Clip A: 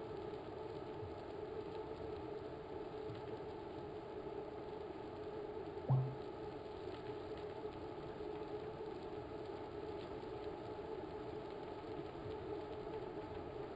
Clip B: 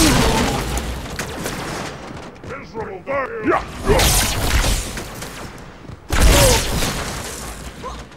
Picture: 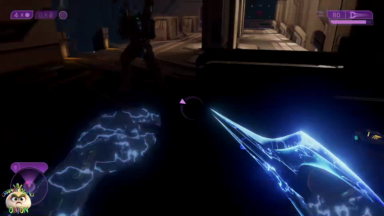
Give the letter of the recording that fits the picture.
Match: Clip B